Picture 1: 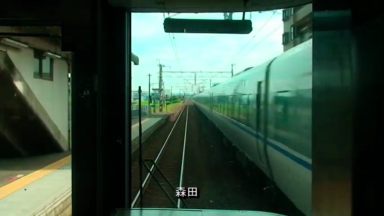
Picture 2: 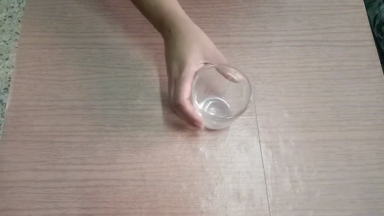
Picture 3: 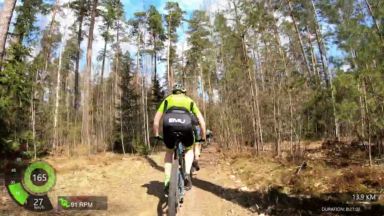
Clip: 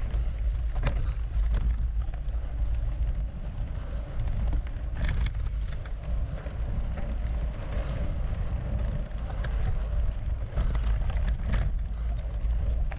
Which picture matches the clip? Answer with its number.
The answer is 3